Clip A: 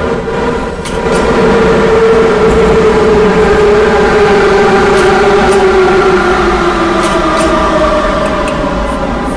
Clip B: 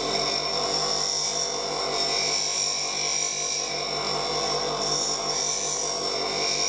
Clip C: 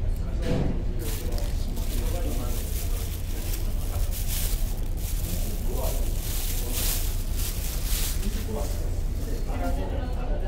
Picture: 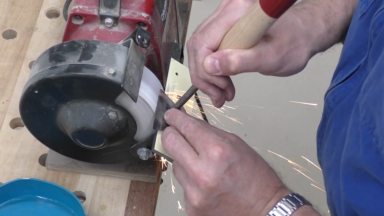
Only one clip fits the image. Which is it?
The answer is B